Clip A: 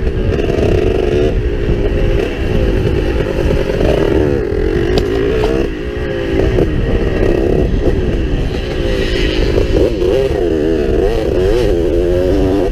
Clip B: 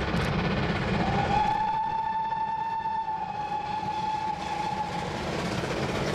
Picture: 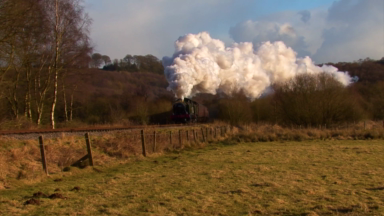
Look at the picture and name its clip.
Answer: B